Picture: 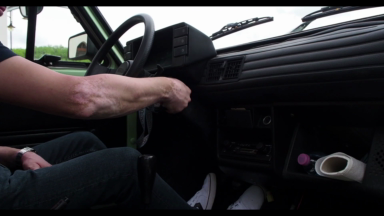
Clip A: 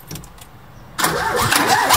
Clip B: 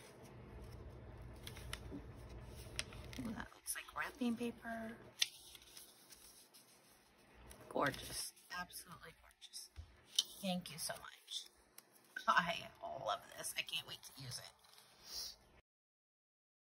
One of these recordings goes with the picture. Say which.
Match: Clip A